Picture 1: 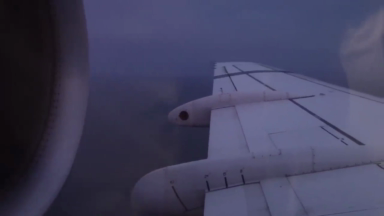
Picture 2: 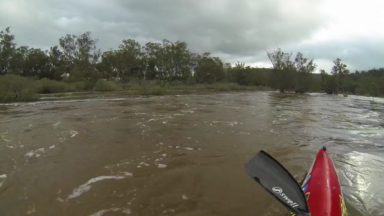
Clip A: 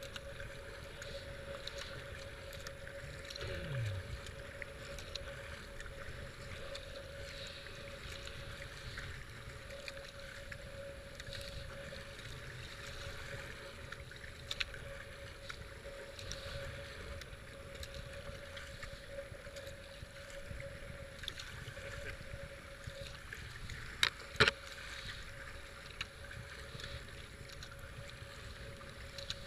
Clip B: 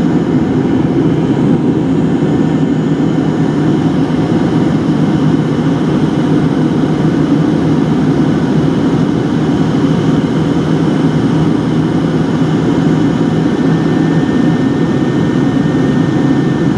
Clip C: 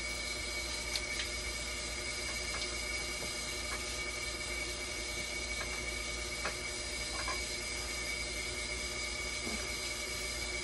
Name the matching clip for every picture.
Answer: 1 B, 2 A